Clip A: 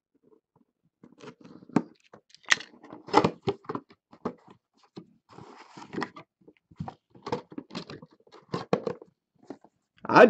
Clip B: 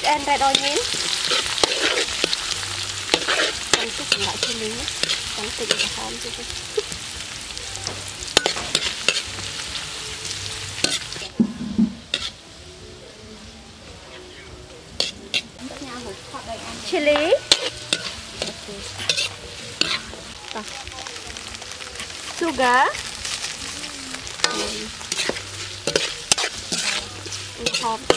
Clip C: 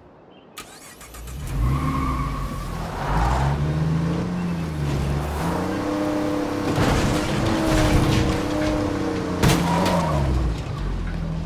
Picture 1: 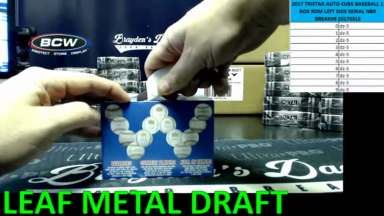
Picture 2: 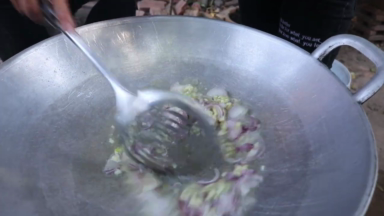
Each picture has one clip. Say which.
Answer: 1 A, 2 B